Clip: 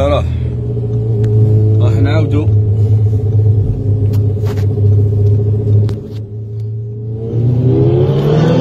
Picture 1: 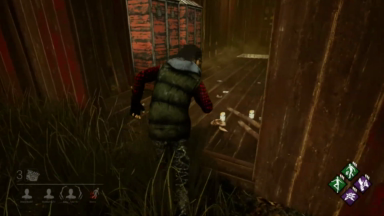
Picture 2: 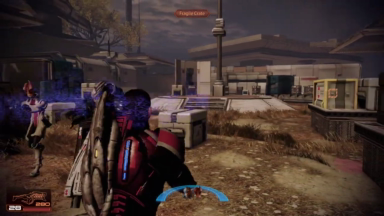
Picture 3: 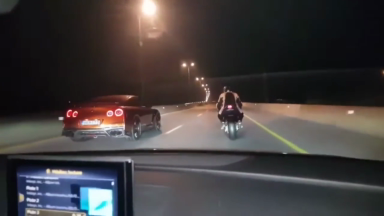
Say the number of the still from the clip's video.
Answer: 3